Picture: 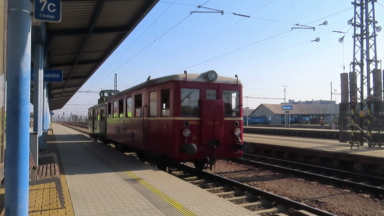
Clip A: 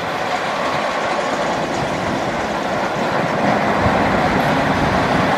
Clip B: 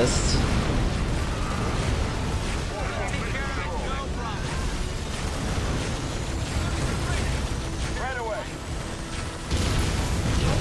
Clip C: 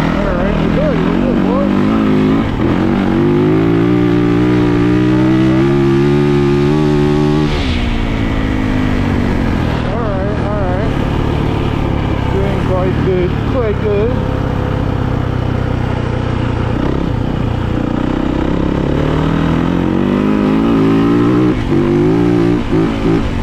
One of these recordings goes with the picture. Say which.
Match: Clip A